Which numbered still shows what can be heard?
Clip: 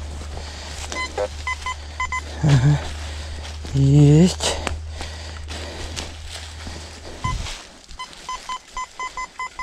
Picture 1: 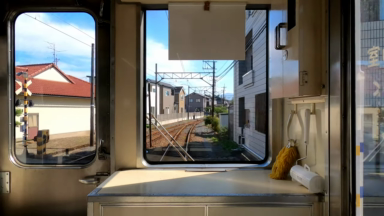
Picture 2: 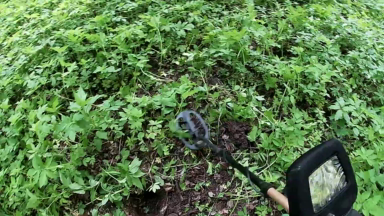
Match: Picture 2